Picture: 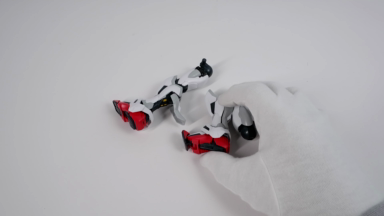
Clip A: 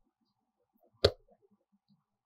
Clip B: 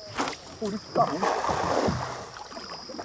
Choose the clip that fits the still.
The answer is A